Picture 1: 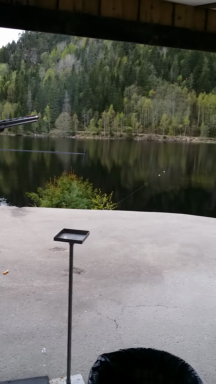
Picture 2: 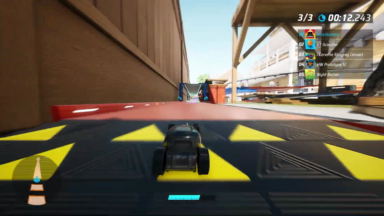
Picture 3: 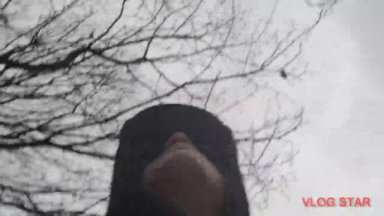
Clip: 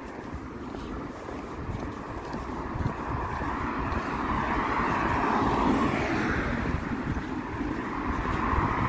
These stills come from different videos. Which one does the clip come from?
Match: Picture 3